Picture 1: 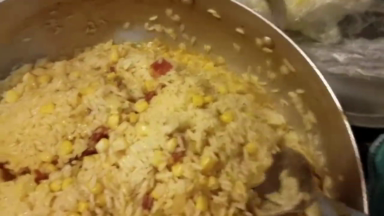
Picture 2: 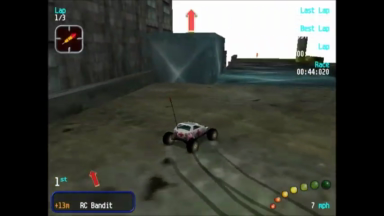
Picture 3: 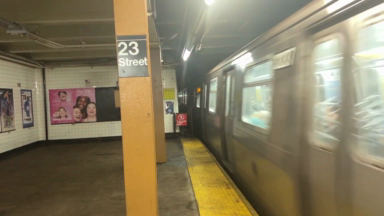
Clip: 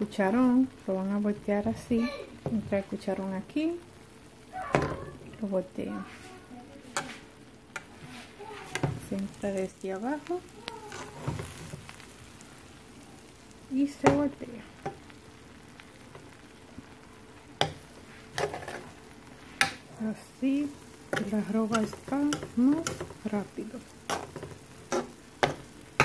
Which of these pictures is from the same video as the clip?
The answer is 1